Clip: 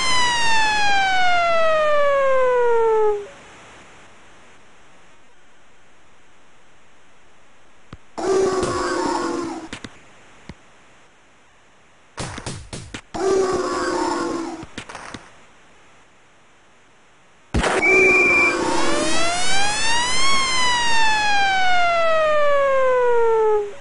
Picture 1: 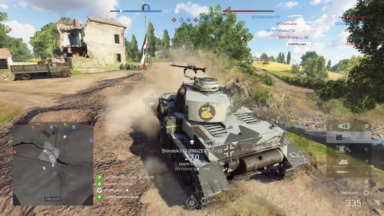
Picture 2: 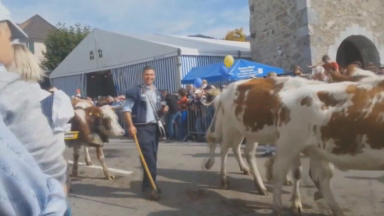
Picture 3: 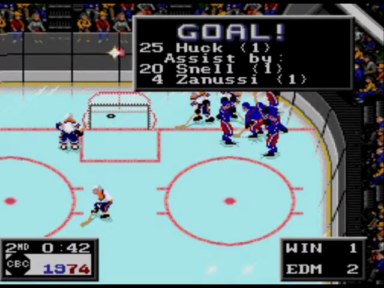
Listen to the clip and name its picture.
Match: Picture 3